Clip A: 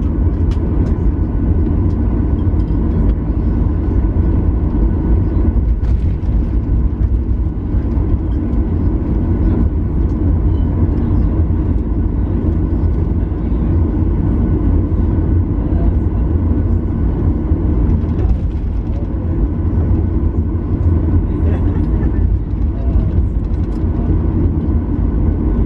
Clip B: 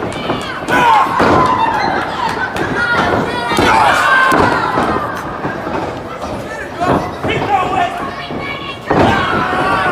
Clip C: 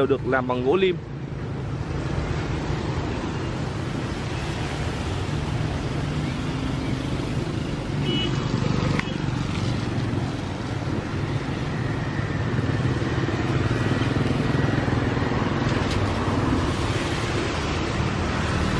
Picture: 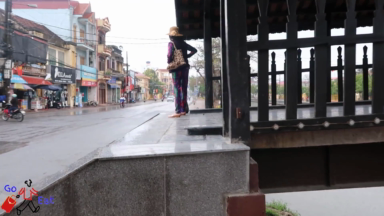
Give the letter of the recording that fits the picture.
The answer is C